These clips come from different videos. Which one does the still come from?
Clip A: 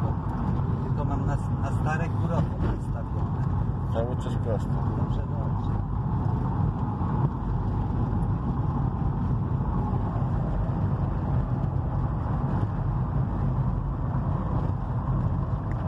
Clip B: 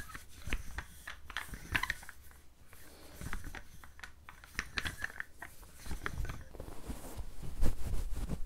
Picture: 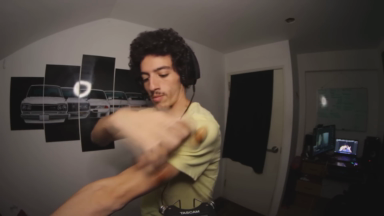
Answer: B